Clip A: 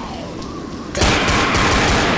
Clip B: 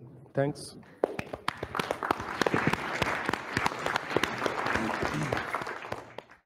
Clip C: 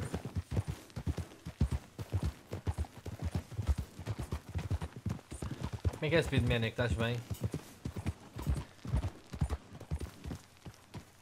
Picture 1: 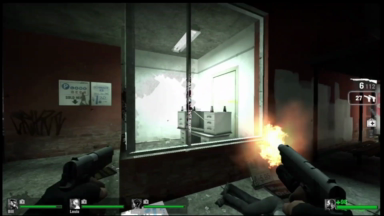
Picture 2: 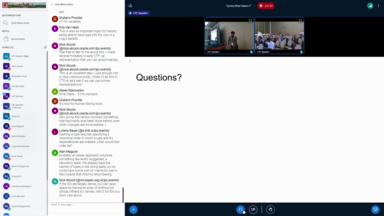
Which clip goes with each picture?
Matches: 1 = A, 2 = B